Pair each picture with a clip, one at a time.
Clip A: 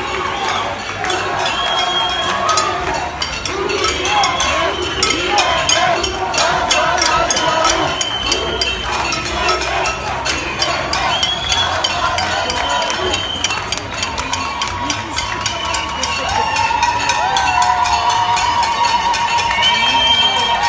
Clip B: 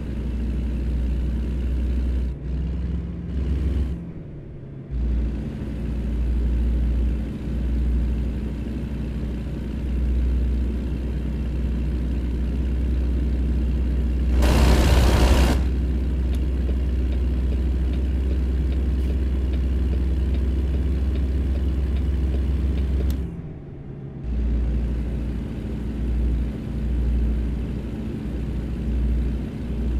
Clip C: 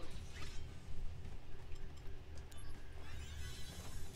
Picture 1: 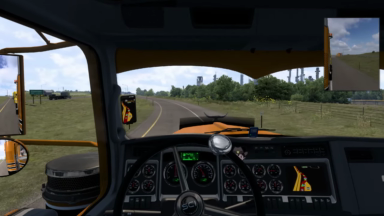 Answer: B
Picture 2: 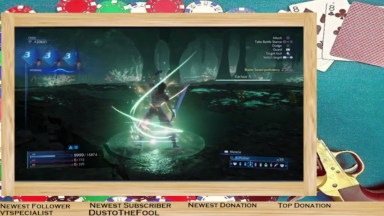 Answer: C